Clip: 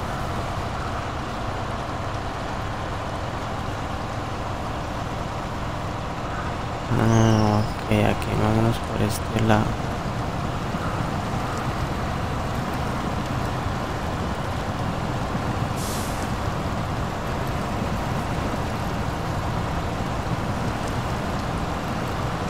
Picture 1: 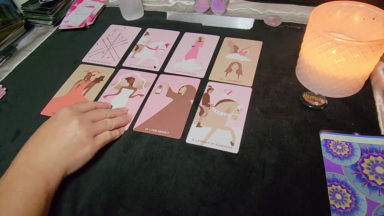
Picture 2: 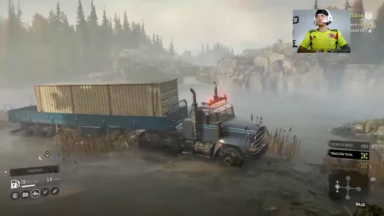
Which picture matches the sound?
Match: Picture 2